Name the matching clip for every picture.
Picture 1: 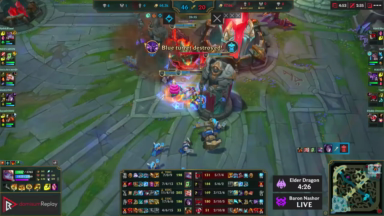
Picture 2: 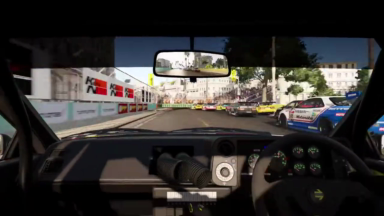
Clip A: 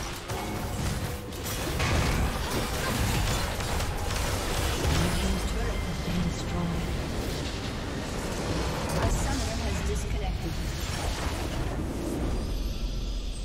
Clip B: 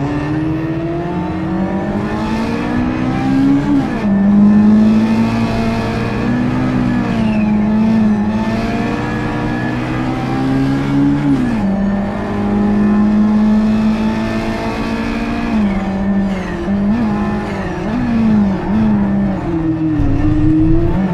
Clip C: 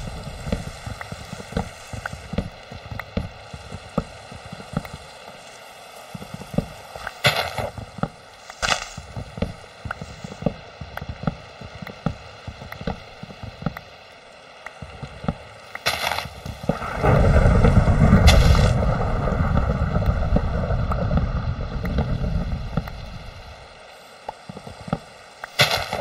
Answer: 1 A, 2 B